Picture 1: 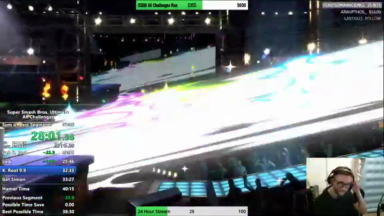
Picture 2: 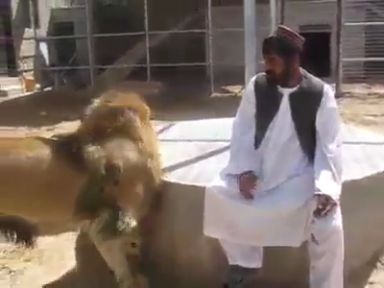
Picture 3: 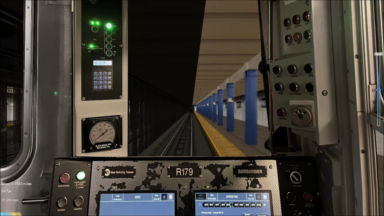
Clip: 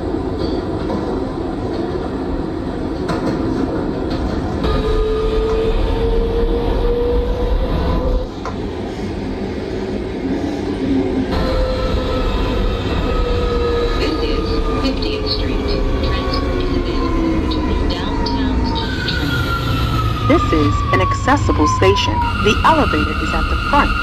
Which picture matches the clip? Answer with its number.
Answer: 3